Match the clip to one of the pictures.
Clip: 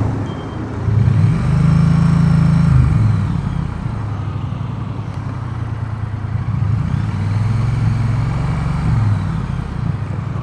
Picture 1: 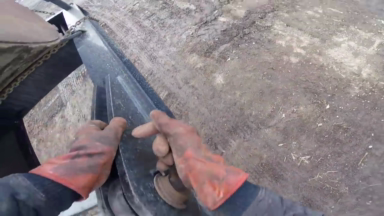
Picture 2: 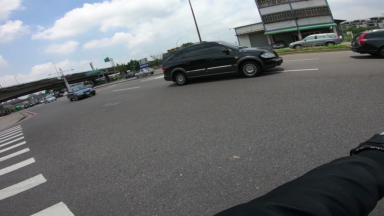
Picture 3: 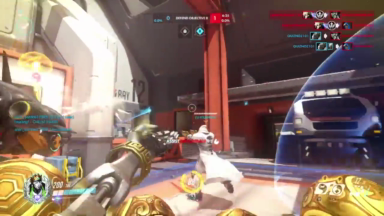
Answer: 2